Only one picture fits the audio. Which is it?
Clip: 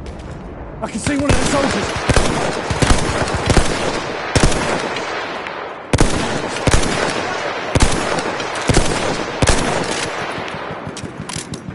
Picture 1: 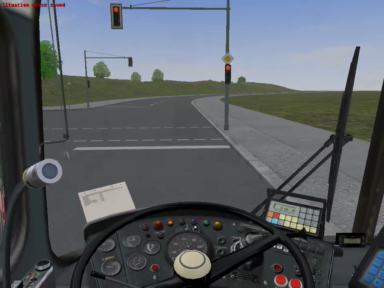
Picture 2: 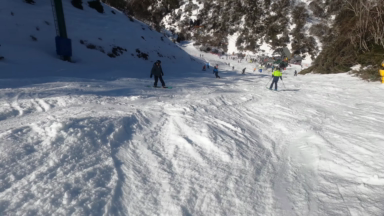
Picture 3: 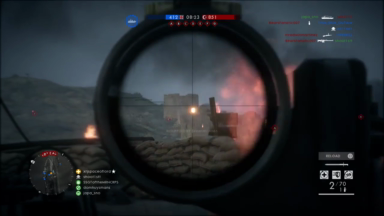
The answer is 3